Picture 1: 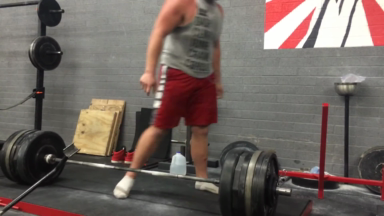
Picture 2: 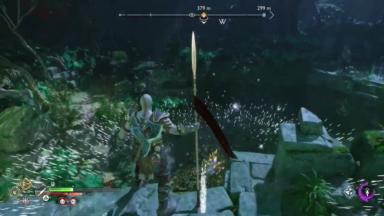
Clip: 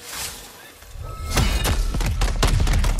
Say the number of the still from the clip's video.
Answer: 2